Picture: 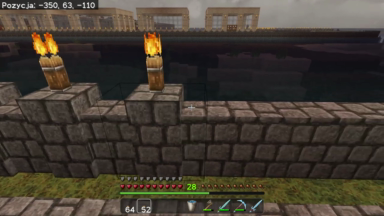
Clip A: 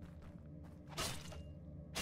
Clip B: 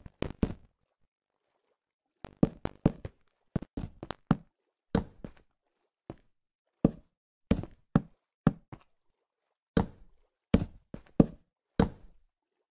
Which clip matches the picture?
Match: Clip B